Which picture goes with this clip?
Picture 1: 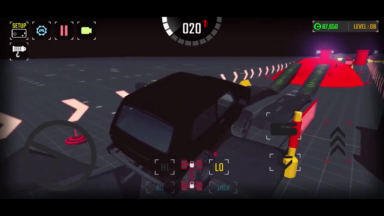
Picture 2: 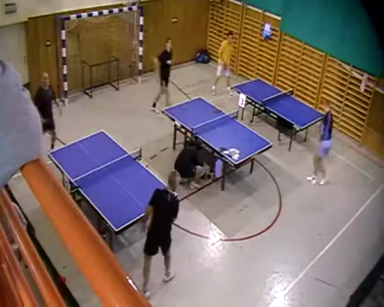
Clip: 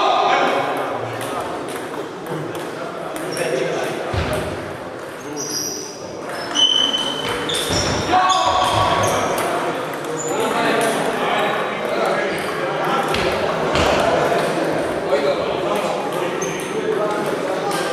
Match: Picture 2